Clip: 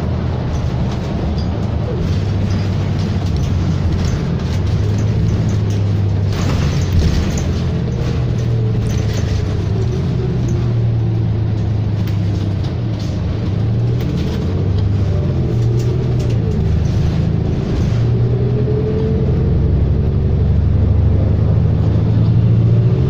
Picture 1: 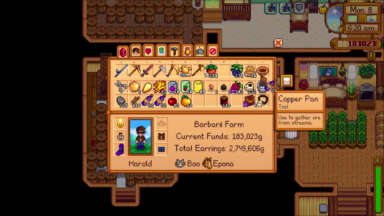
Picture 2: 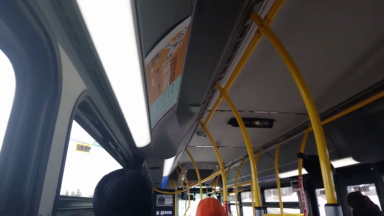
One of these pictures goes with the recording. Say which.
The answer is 2